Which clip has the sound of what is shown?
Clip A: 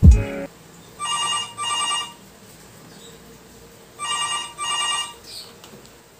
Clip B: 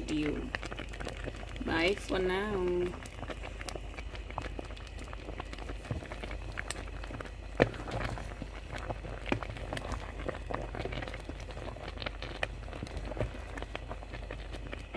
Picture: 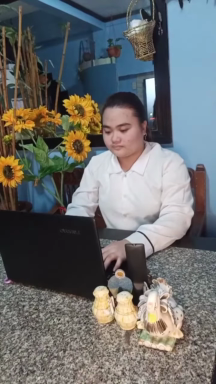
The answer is A